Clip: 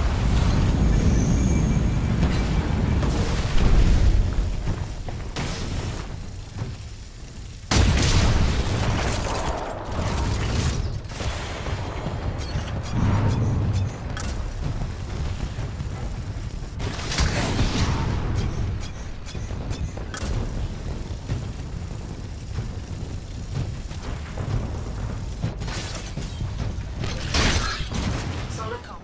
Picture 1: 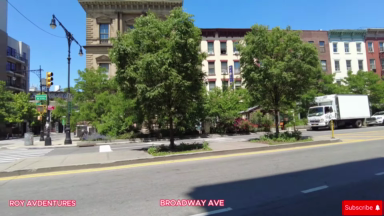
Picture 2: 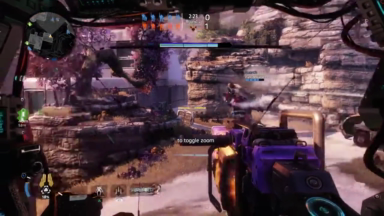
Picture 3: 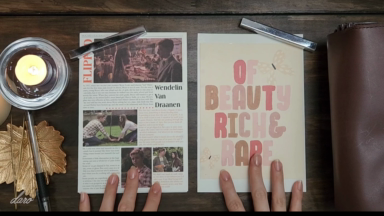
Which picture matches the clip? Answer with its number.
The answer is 2